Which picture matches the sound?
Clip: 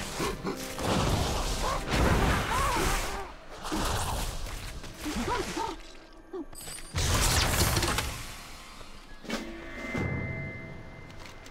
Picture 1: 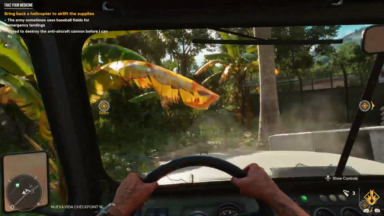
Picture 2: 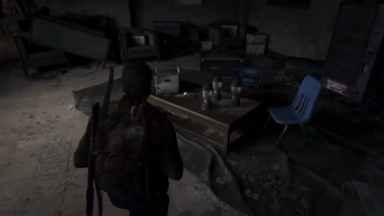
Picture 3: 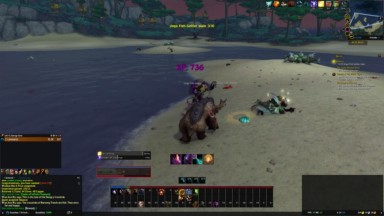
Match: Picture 3